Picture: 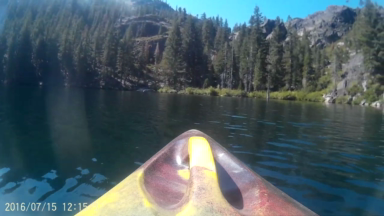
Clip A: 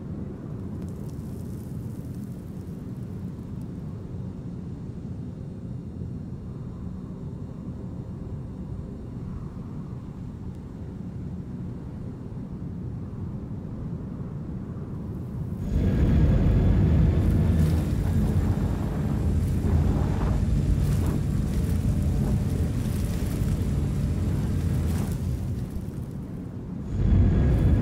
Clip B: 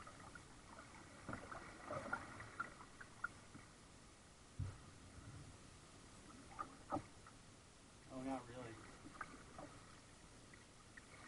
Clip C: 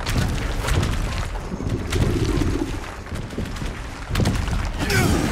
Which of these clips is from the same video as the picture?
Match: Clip B